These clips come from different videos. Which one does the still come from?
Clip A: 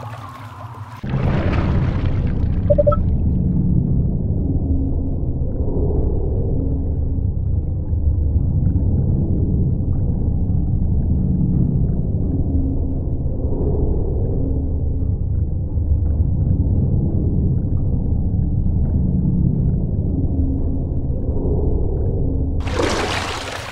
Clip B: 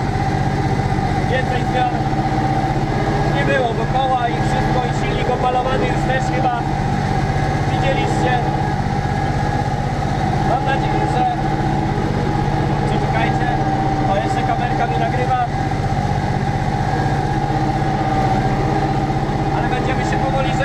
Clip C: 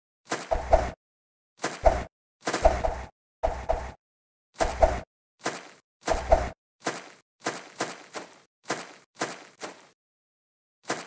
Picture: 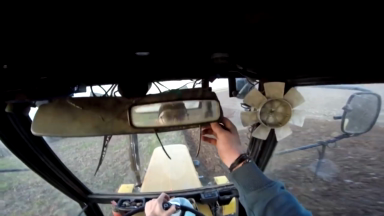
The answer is B